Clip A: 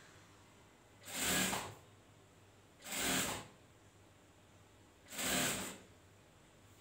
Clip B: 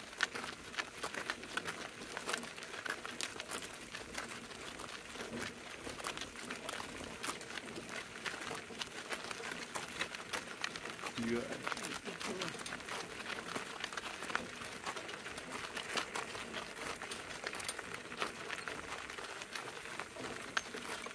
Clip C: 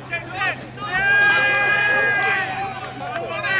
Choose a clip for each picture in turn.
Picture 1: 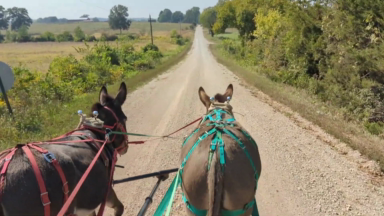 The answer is B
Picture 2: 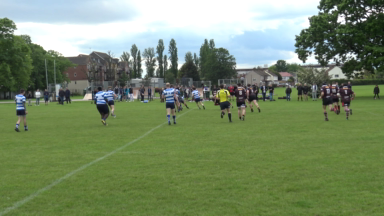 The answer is C